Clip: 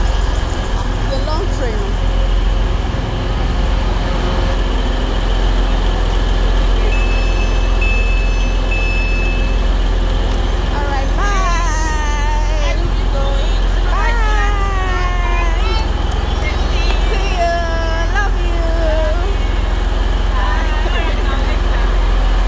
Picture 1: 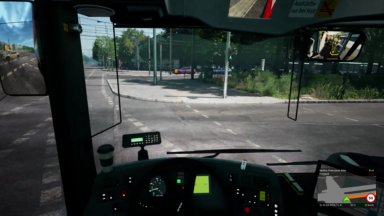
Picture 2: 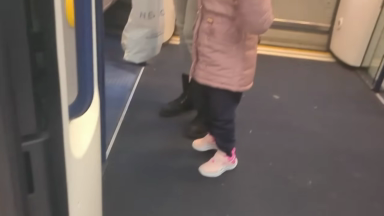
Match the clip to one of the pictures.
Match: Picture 2